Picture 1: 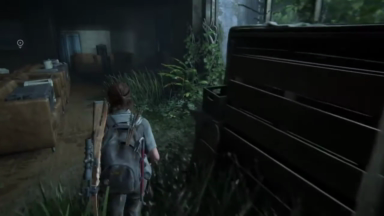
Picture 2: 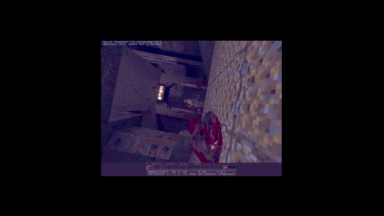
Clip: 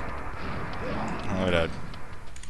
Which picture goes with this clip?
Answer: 2